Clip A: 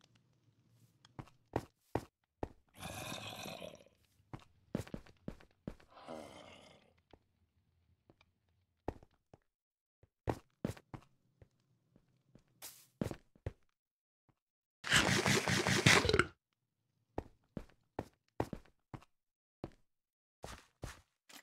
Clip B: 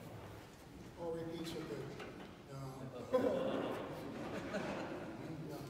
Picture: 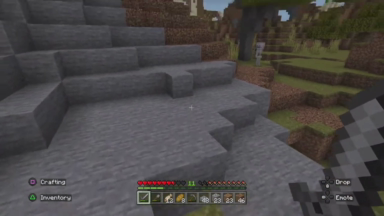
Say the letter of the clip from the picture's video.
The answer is A